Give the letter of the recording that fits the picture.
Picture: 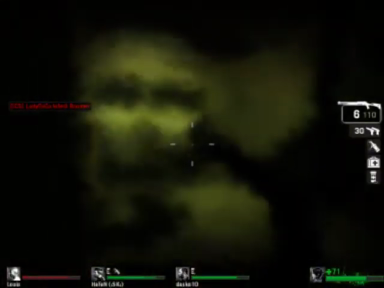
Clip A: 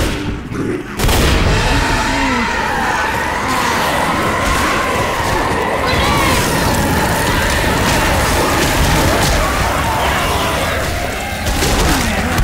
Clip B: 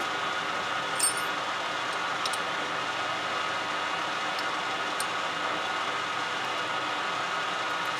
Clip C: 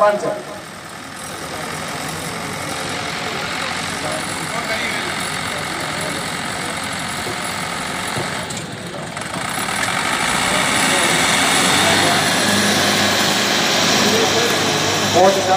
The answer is A